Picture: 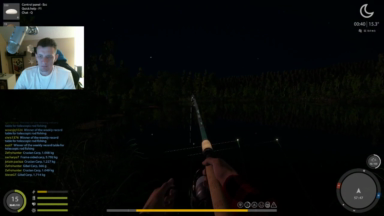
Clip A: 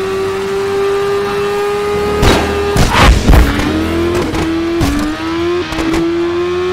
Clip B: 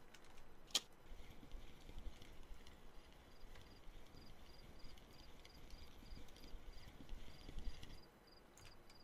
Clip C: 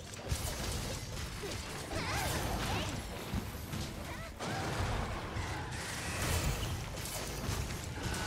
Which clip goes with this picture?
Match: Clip B